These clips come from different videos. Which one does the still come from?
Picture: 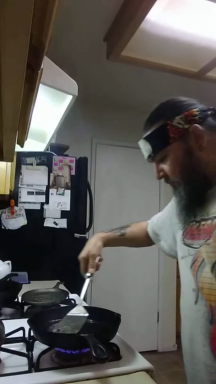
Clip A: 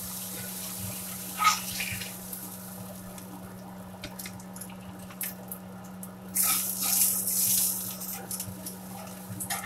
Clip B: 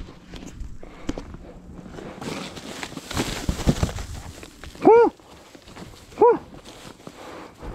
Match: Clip A